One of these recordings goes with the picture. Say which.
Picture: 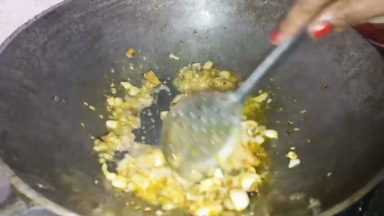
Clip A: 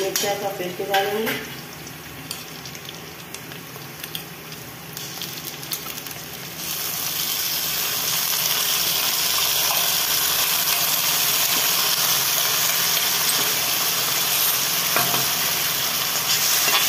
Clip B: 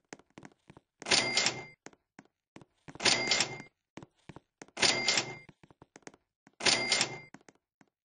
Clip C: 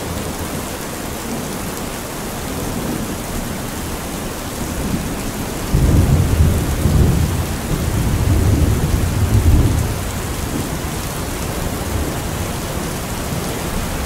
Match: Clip A